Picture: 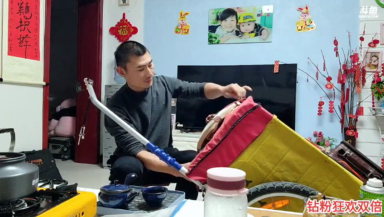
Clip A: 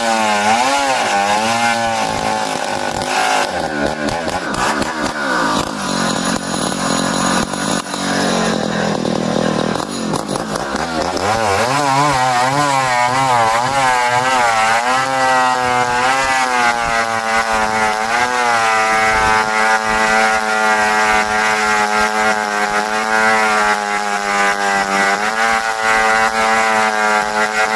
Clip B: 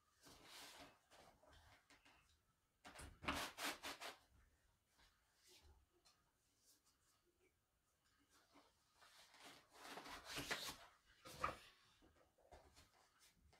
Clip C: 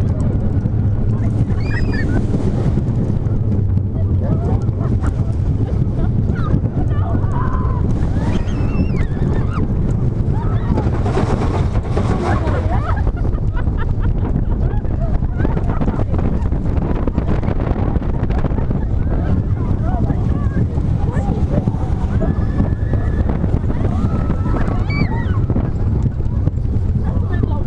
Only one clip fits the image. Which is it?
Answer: B